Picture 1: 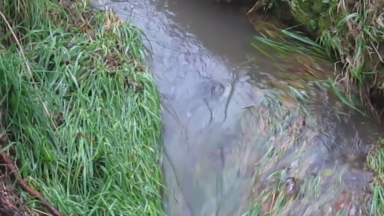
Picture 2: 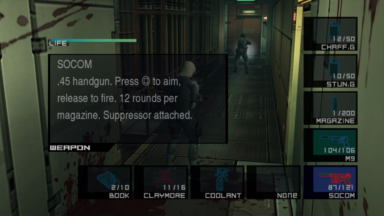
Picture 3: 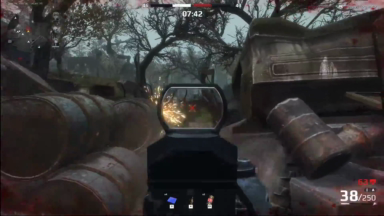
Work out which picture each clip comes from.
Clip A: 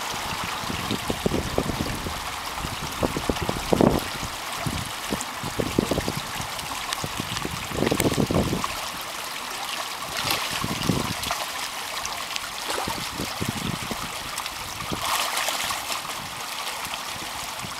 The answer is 1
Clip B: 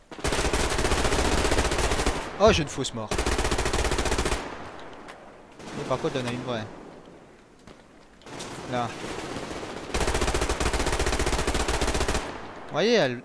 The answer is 3